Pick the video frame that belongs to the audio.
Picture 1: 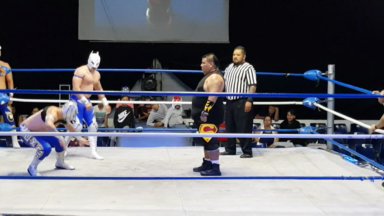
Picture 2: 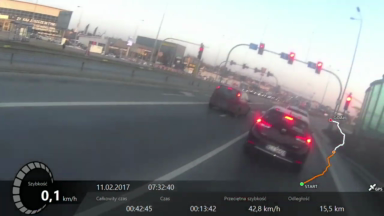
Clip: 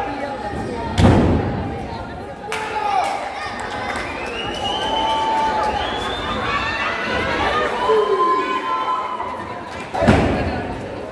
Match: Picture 1